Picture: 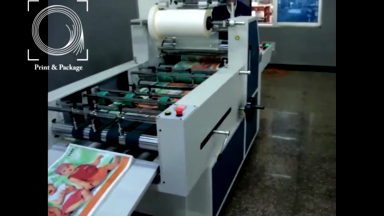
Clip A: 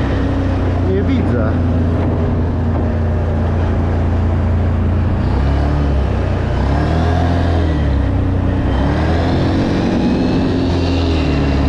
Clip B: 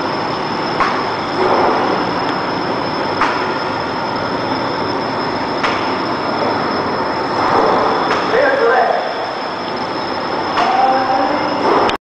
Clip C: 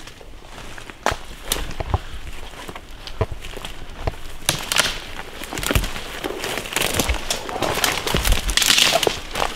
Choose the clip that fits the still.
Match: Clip B